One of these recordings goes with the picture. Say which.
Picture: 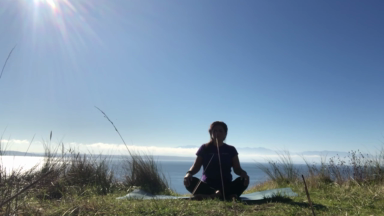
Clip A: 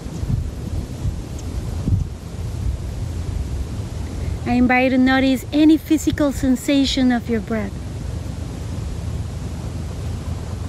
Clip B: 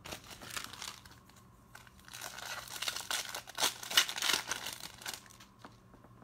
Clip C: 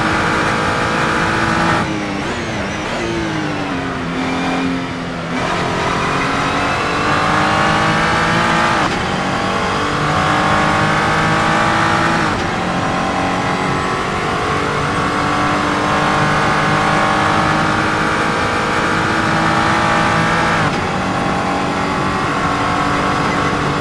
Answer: A